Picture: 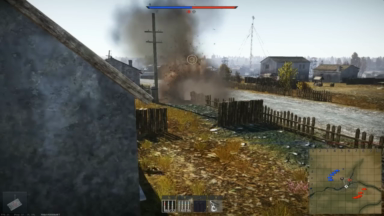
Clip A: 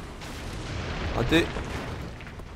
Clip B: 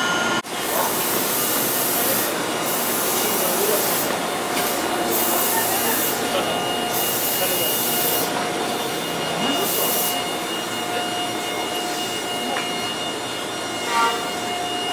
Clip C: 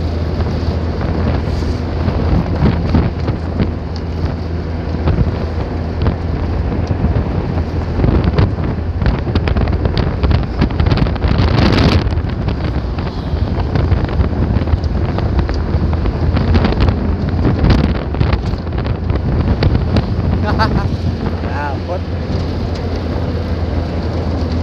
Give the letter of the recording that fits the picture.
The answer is A